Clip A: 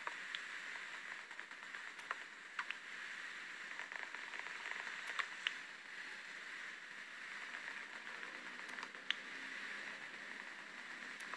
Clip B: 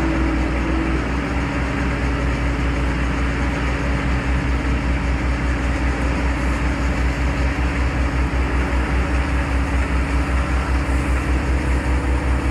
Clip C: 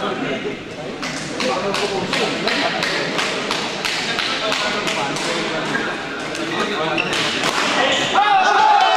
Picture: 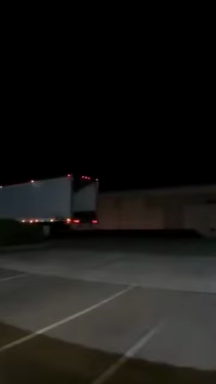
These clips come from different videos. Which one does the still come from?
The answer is B